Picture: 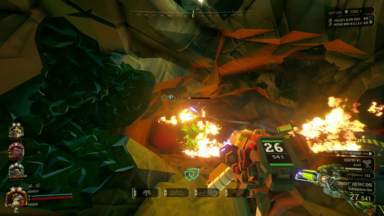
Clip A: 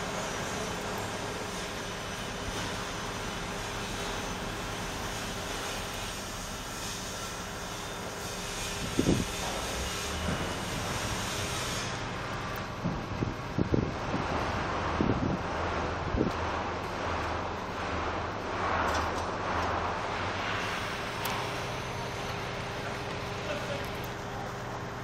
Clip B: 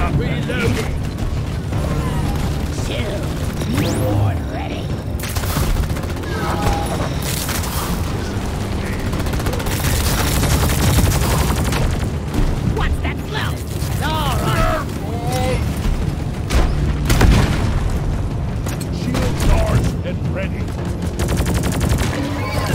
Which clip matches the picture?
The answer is B